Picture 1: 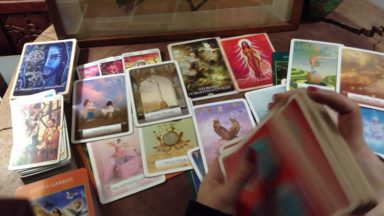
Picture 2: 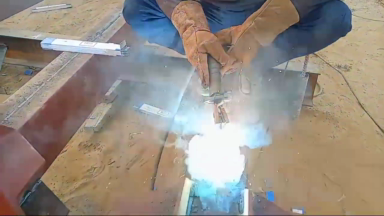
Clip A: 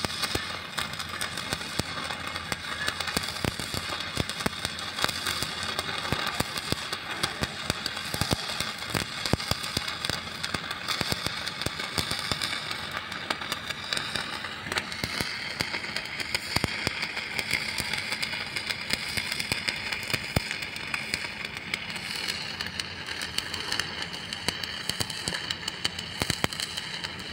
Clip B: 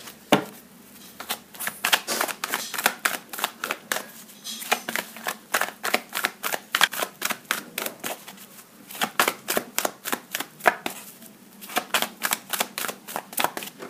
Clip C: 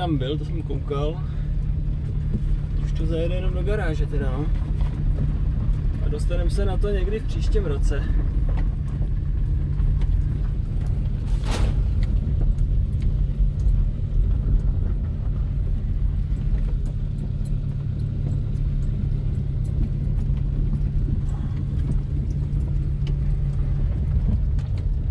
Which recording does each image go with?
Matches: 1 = B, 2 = A